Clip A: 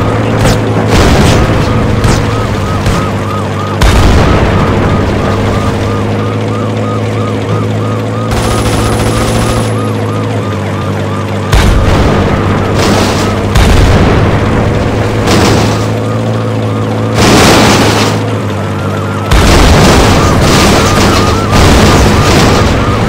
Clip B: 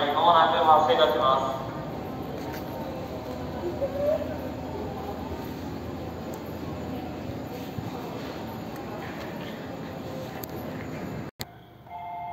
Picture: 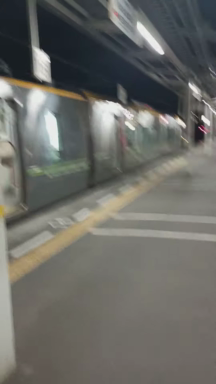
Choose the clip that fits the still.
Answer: B